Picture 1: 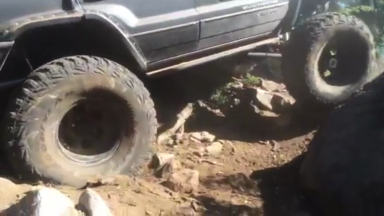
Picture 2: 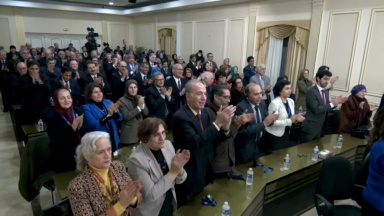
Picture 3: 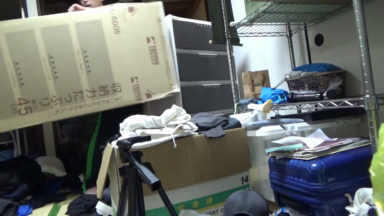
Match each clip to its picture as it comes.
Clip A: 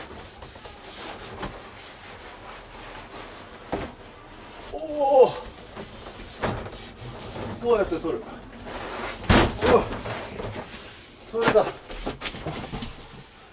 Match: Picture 3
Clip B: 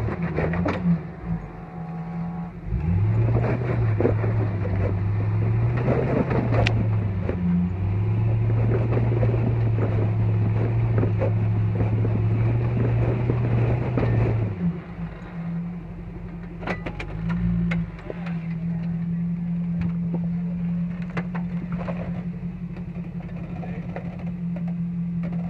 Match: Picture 1